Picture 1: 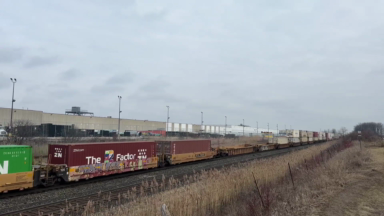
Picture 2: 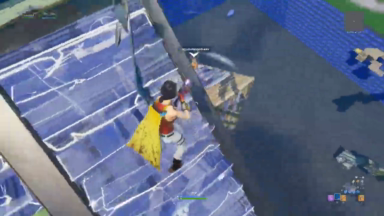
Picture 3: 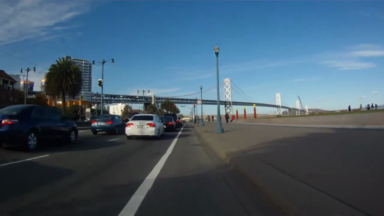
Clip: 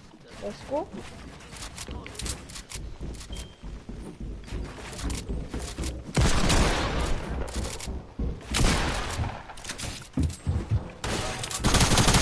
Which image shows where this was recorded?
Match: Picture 2